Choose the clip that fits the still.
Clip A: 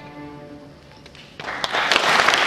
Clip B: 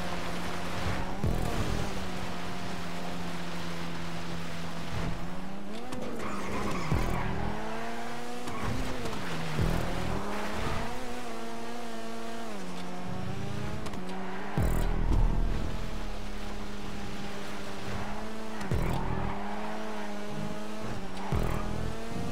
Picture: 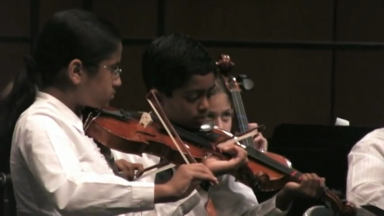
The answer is A